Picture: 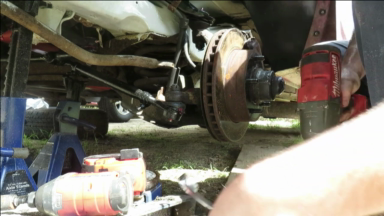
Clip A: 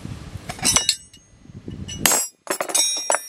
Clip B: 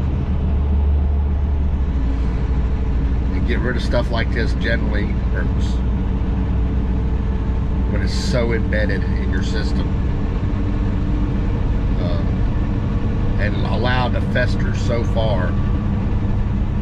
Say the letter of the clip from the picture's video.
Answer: A